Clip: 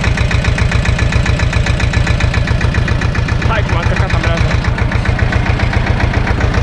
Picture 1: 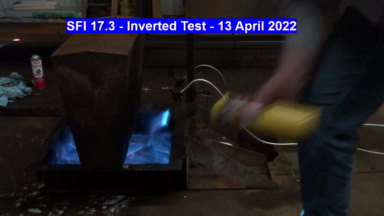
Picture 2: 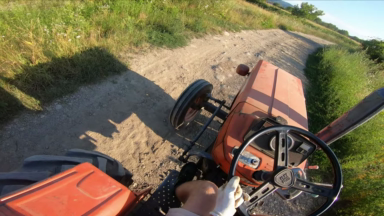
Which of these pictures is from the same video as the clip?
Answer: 2